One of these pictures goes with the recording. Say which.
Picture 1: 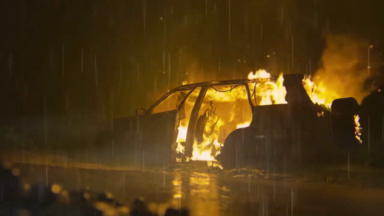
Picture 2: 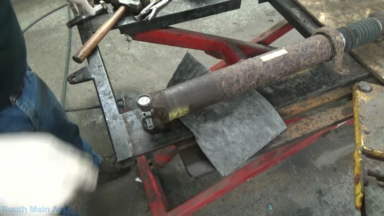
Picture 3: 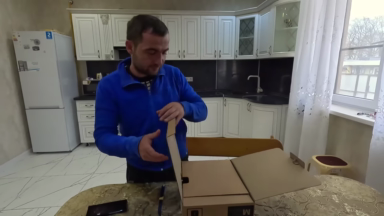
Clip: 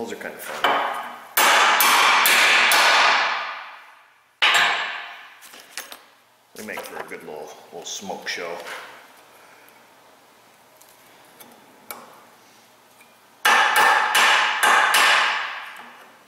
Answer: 2